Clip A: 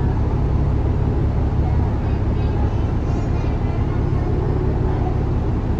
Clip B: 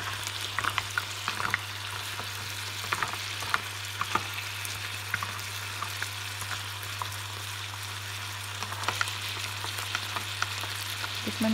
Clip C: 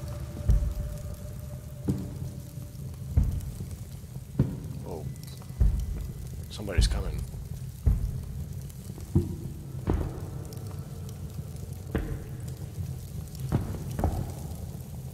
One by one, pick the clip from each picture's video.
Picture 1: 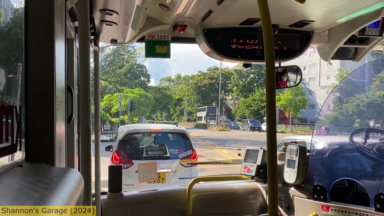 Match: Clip A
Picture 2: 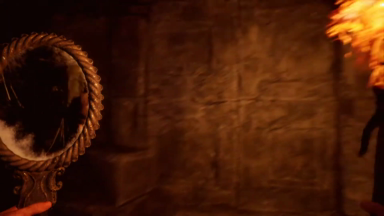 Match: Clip C